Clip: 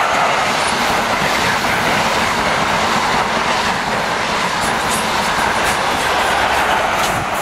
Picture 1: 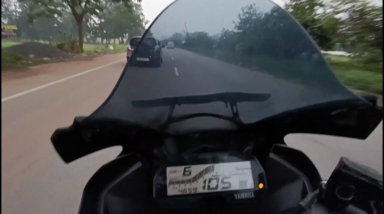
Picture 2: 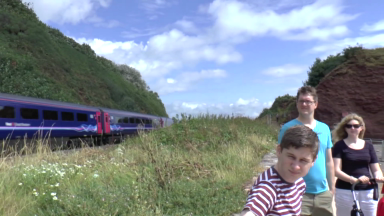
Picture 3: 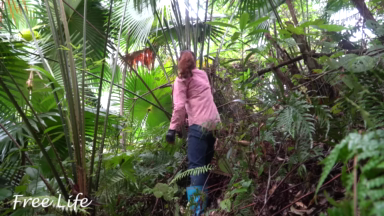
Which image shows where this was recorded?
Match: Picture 2